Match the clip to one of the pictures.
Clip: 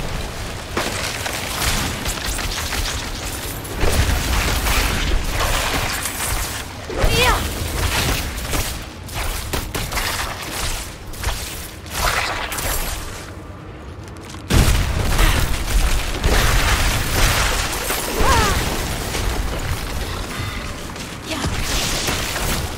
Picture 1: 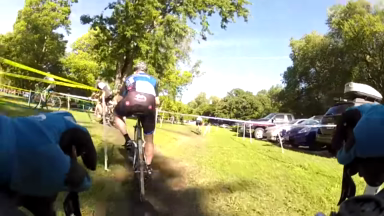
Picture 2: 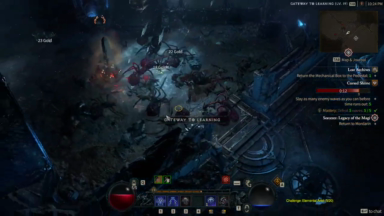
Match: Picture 2